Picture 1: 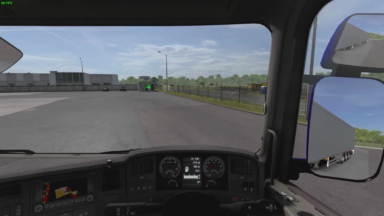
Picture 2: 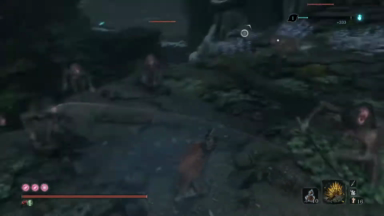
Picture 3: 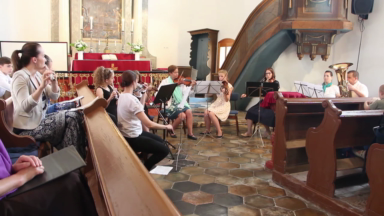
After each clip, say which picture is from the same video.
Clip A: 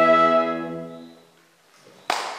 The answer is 3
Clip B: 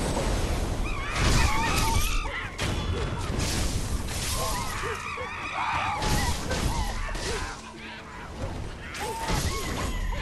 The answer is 2